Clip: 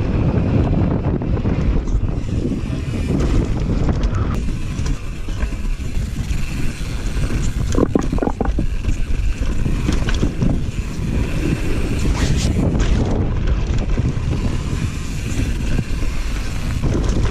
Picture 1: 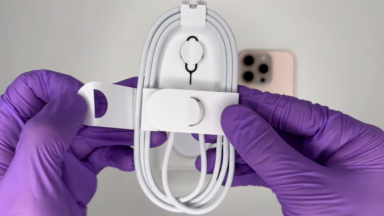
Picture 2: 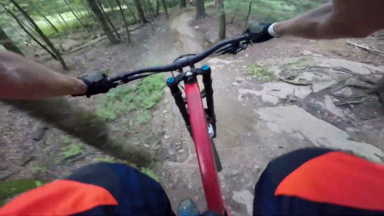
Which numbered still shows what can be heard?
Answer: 2